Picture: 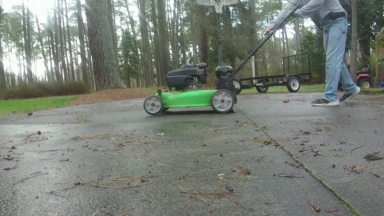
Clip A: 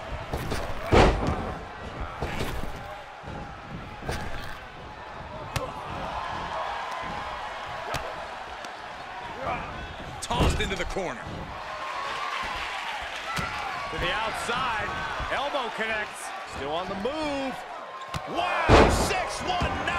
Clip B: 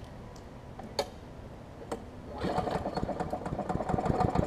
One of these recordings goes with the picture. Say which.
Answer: B